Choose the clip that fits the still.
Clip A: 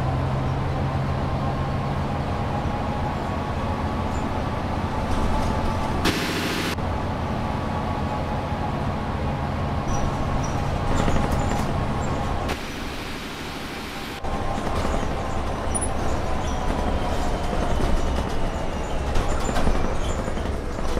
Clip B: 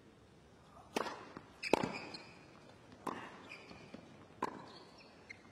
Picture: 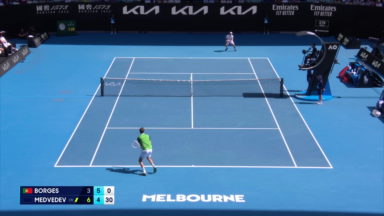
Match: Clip B